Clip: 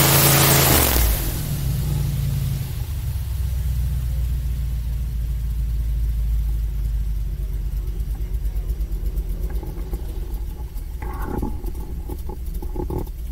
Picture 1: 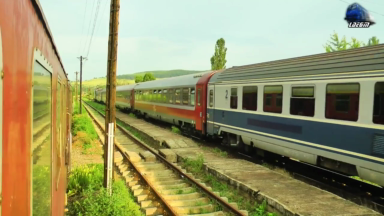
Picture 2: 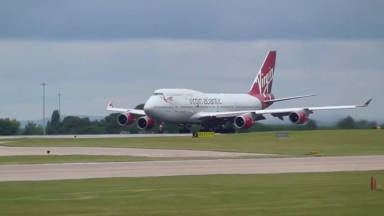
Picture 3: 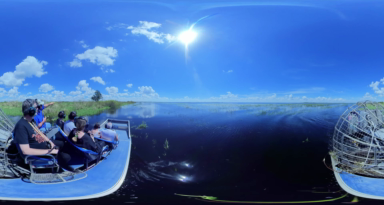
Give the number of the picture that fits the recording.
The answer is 3